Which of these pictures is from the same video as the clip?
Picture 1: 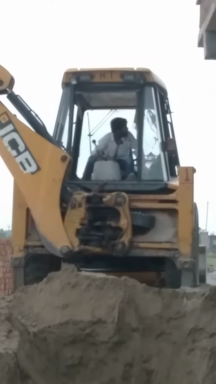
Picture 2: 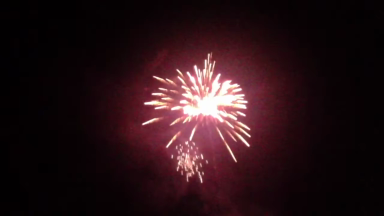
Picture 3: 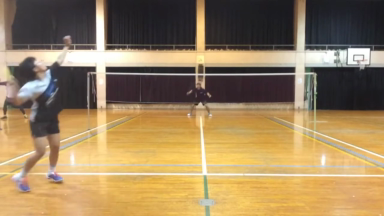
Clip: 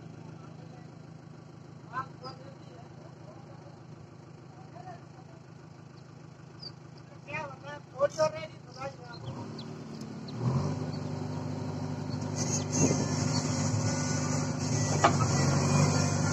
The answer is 1